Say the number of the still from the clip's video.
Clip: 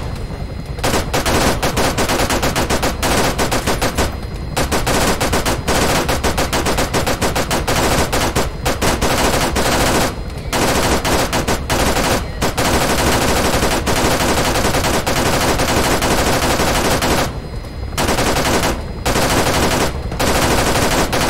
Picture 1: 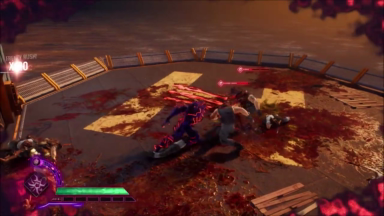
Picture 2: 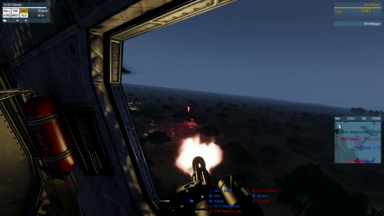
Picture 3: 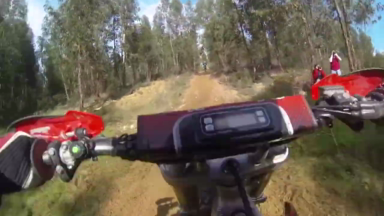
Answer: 2